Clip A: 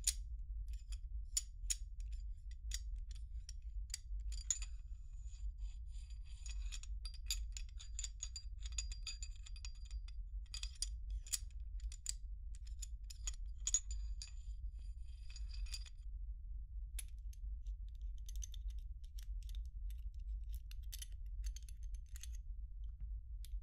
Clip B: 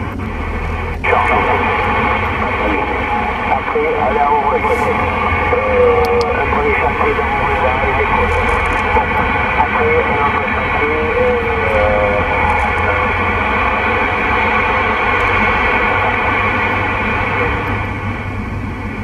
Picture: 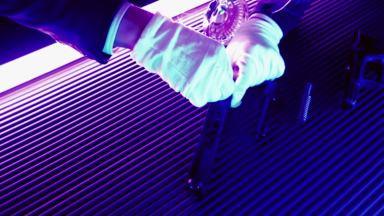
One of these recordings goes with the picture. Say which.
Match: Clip A